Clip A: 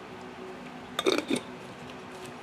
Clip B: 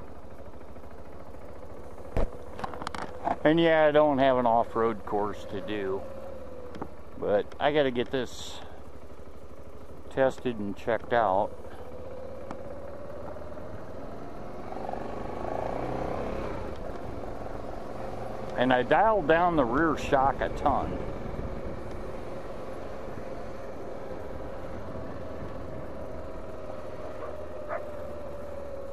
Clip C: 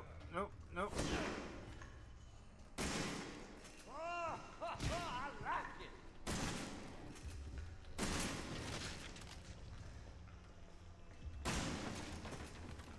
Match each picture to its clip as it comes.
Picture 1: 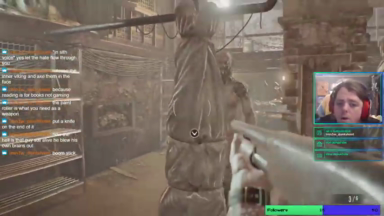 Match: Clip C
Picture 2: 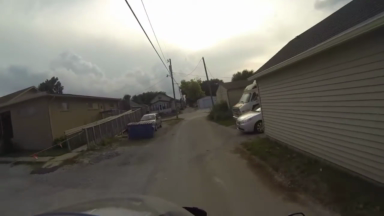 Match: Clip B